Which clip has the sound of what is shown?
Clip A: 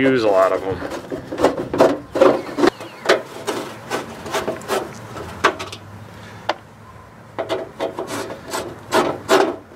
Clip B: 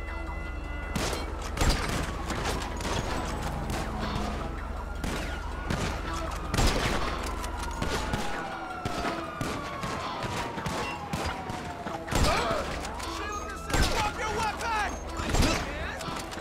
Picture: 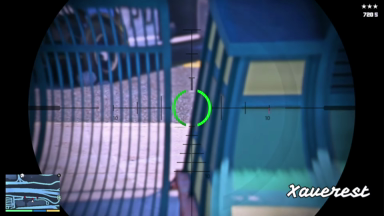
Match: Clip B